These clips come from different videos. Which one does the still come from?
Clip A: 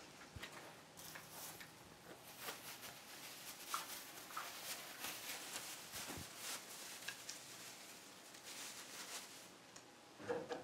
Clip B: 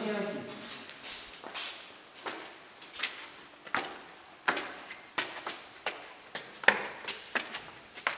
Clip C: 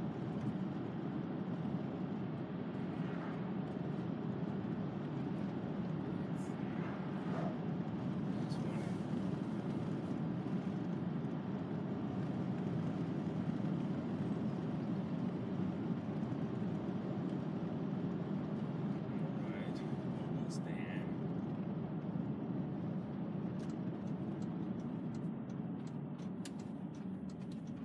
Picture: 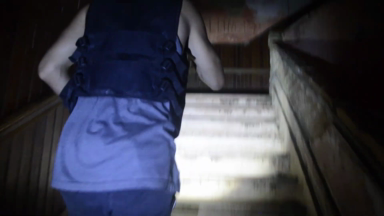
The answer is B